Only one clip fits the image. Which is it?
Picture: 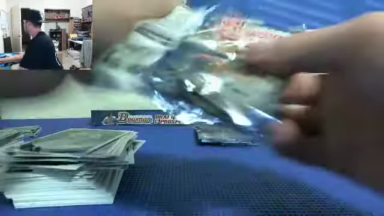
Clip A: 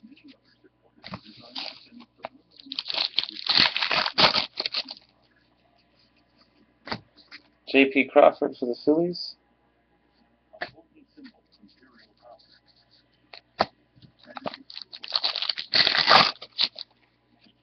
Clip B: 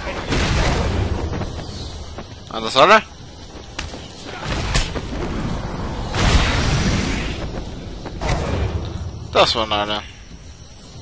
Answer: A